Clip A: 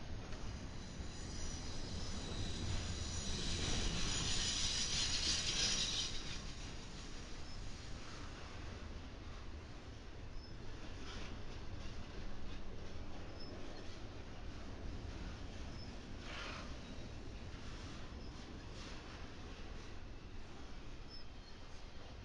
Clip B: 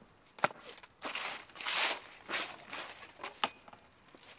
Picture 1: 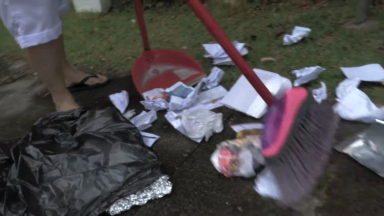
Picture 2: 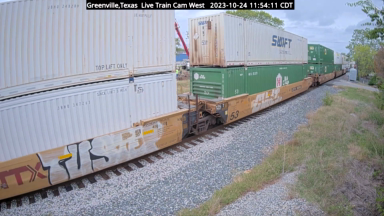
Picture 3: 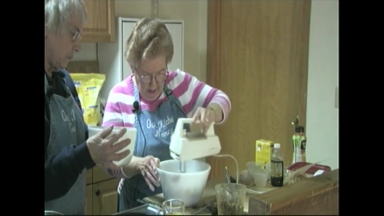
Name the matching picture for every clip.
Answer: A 2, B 1